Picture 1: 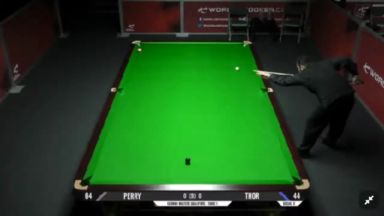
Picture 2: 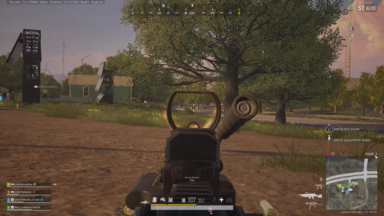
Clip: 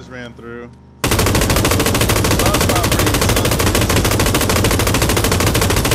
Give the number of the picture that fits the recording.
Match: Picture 2